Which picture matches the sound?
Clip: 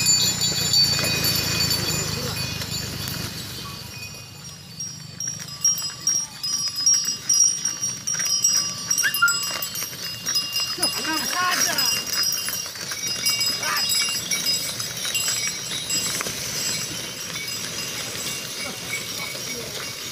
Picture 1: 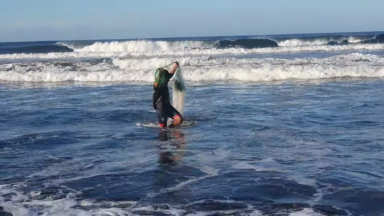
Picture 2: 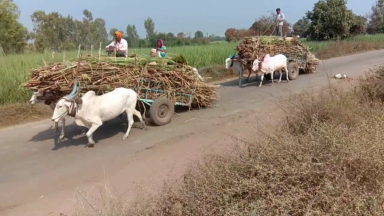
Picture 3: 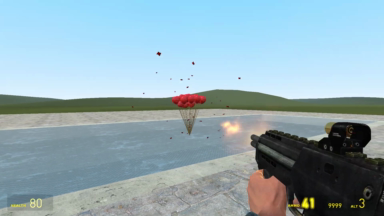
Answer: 2